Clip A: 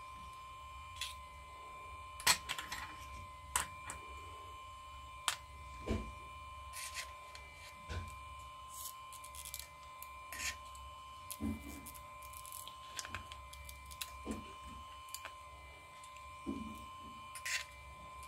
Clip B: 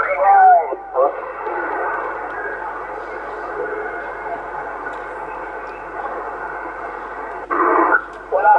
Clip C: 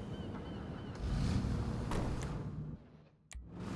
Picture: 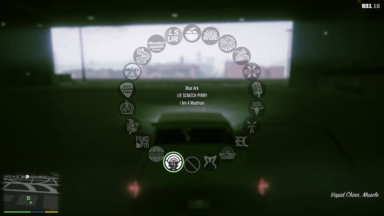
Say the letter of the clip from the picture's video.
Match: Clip C